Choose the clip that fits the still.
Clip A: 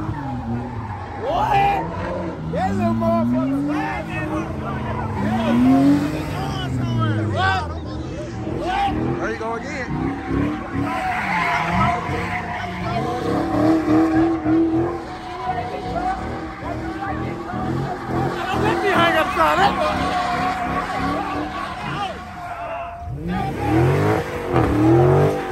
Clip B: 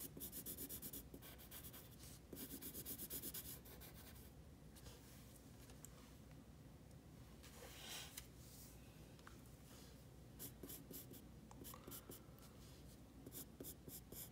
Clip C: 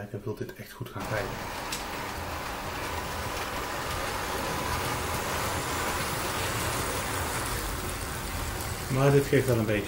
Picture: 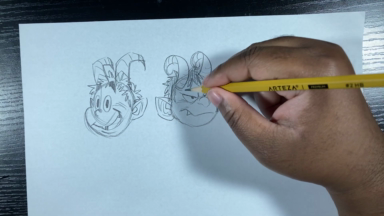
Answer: B